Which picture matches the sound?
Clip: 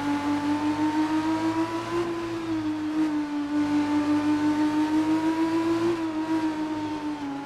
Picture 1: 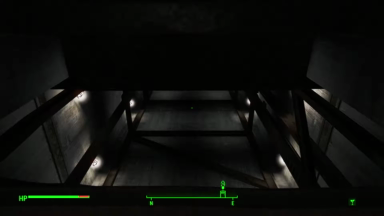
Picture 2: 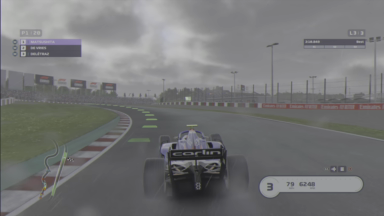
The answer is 2